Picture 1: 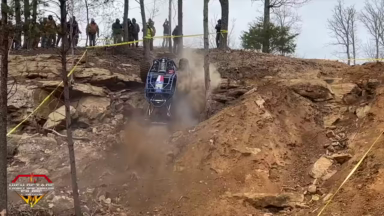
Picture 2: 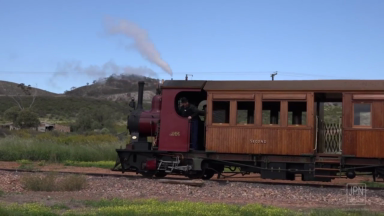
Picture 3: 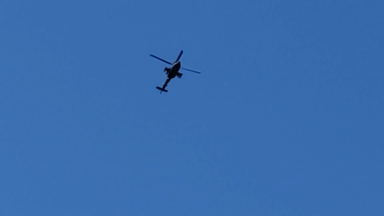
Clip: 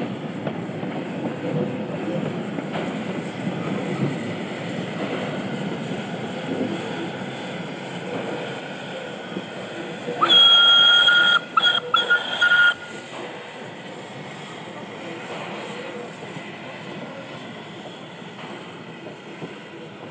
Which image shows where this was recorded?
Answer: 2